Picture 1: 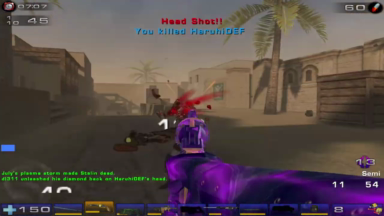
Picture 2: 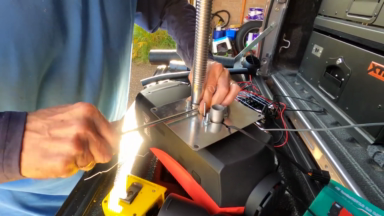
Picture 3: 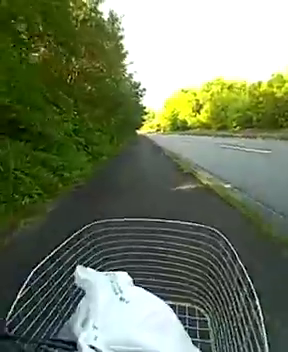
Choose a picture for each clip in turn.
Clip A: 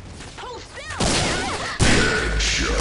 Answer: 1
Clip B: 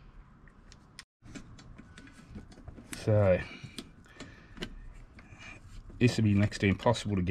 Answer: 2